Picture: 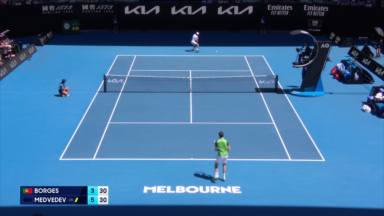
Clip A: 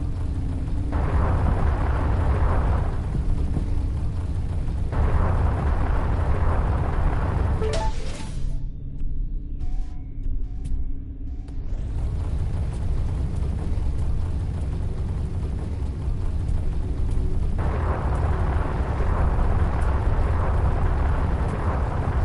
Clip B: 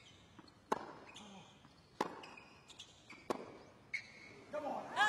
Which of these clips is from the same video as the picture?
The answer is B